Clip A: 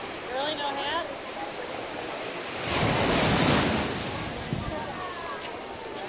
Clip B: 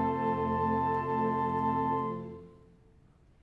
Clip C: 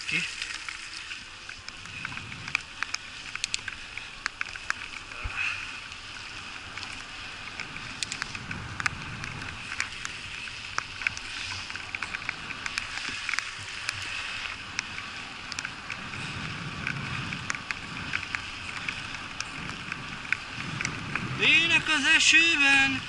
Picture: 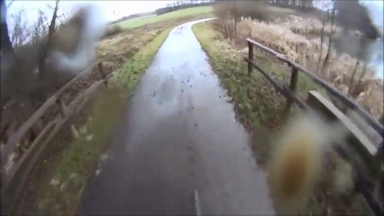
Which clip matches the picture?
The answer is C